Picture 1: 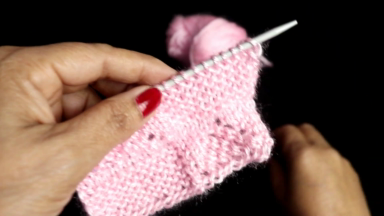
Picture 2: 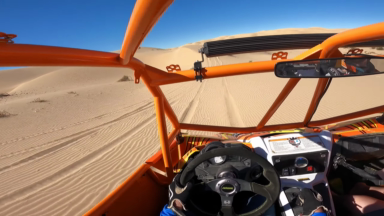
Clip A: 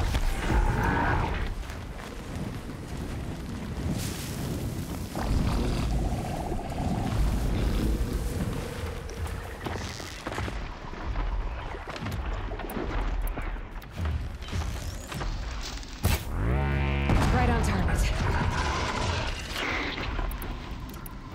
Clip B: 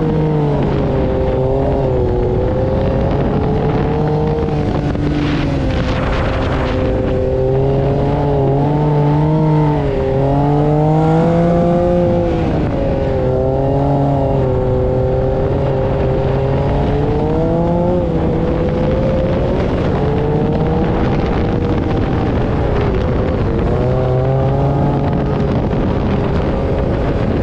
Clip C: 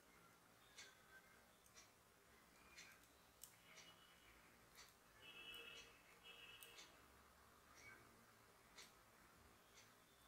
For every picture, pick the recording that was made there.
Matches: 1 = C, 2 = B